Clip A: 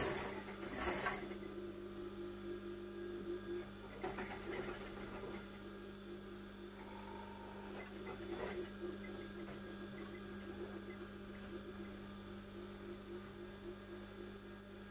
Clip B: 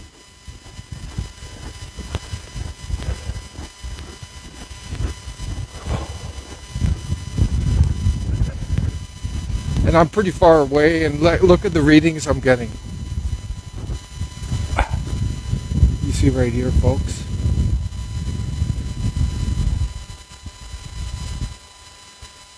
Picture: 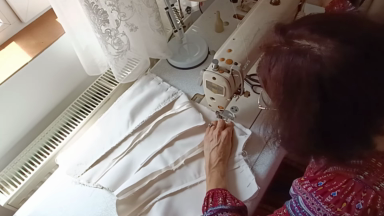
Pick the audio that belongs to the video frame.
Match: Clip A